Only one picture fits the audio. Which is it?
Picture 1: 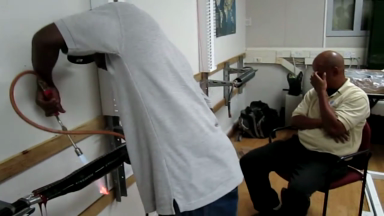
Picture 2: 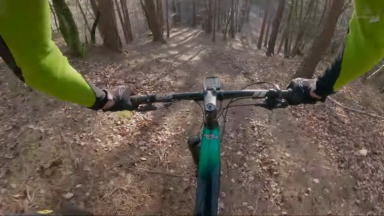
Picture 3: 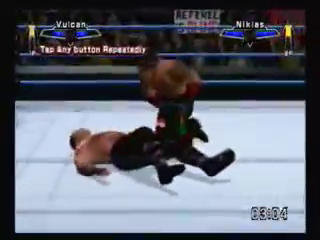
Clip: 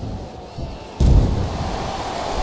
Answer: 3